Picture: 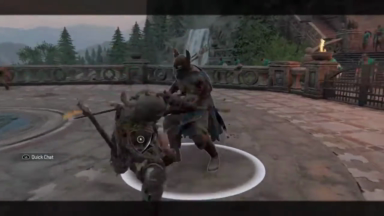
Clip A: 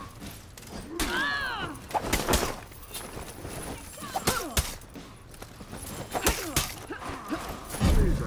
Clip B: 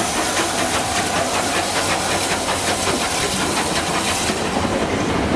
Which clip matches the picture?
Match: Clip A